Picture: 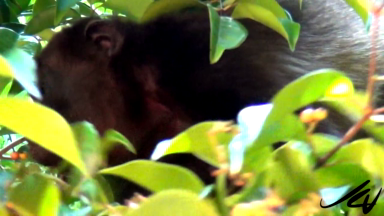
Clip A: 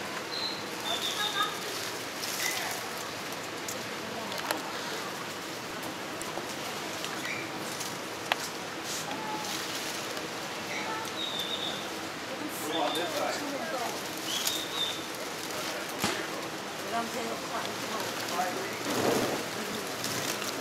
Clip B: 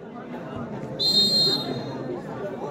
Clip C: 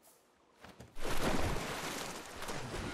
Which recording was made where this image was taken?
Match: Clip A